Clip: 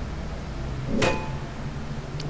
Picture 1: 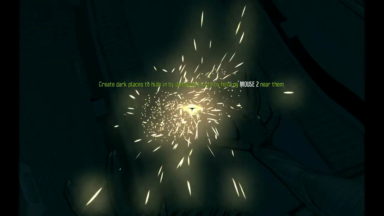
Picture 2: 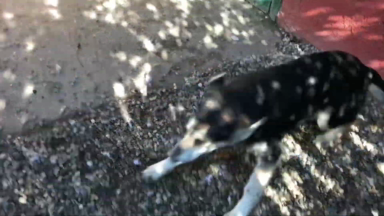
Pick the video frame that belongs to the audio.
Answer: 1